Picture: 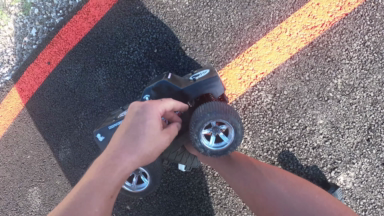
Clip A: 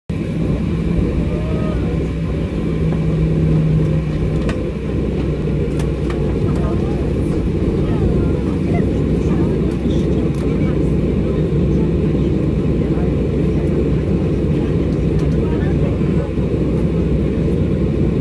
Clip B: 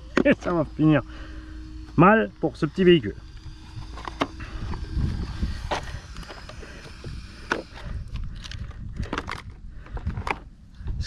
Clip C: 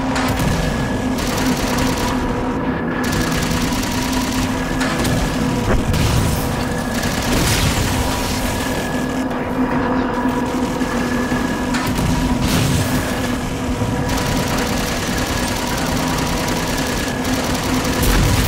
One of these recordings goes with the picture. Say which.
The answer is B